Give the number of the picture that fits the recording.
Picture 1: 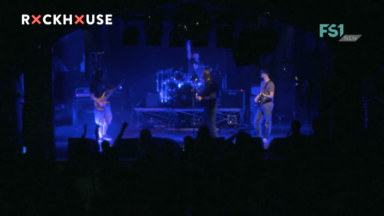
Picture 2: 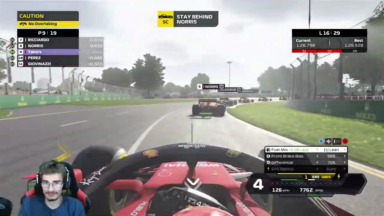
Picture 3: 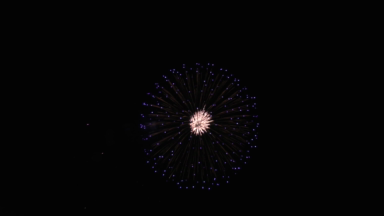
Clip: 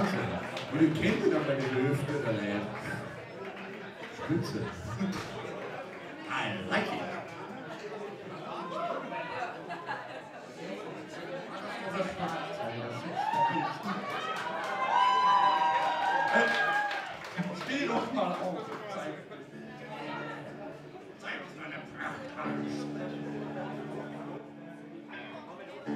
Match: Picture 1